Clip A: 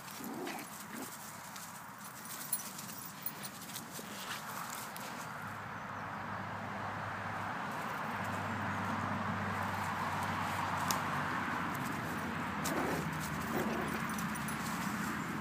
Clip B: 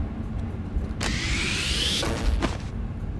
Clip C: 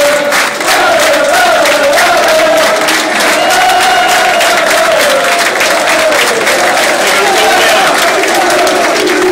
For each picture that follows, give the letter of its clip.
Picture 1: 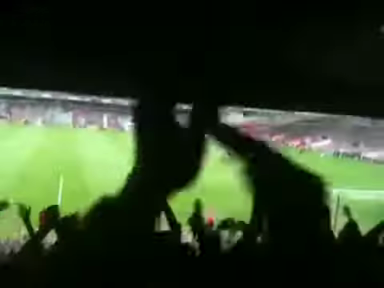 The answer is C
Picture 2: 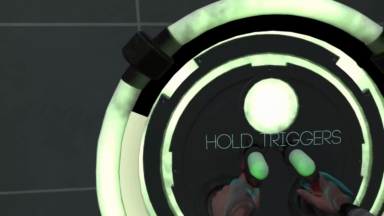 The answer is B